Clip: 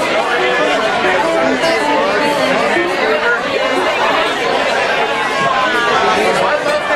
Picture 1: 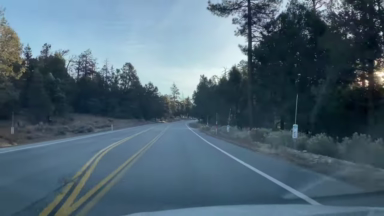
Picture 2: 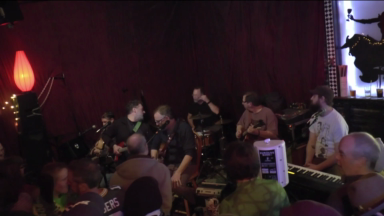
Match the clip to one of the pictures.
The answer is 2